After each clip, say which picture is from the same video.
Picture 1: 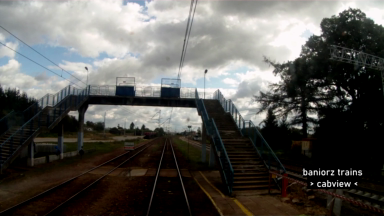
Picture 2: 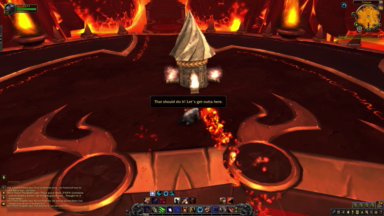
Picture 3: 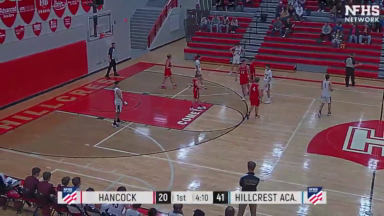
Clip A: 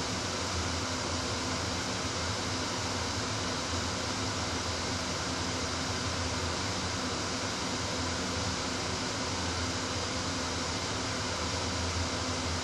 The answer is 1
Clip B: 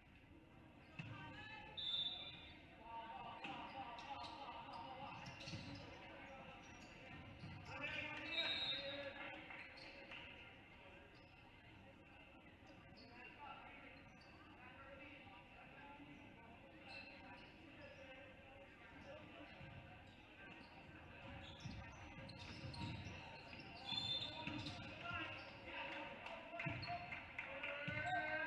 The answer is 3